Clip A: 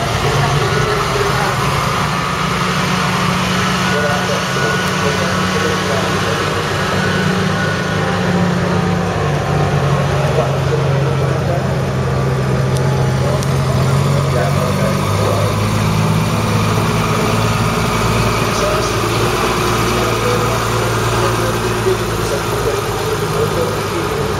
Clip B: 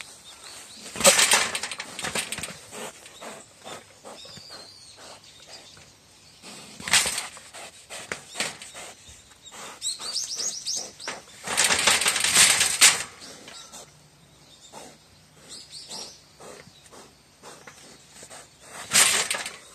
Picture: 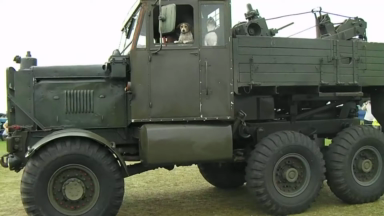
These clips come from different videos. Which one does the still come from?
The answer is A